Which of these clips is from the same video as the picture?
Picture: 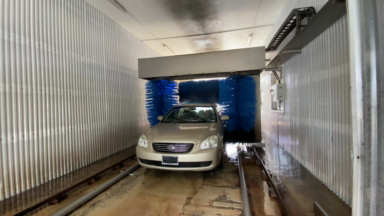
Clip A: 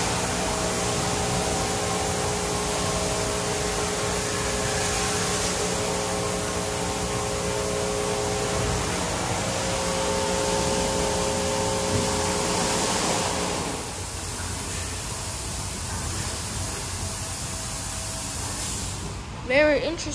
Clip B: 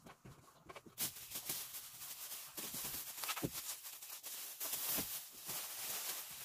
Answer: A